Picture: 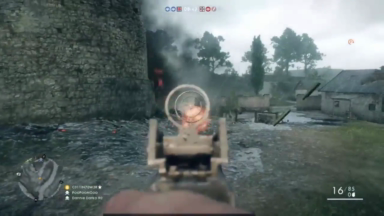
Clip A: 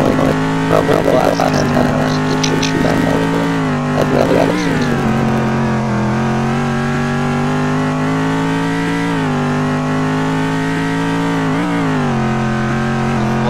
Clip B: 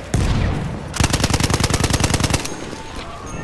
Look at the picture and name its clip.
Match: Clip B